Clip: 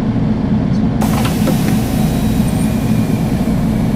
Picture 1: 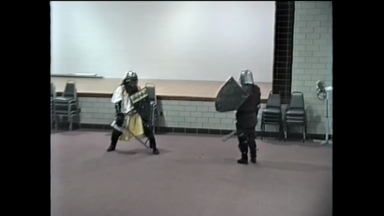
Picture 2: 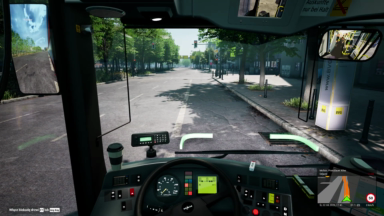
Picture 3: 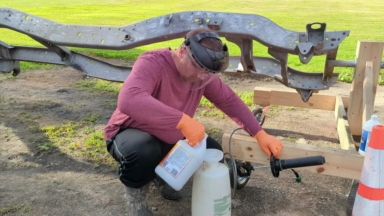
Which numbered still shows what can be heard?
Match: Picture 2